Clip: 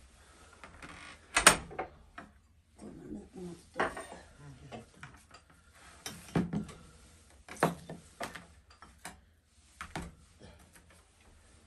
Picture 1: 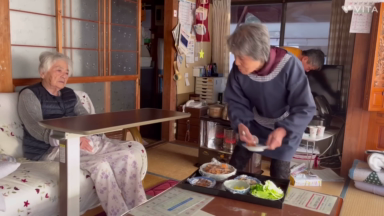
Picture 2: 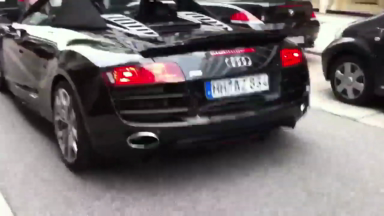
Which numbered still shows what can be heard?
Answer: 1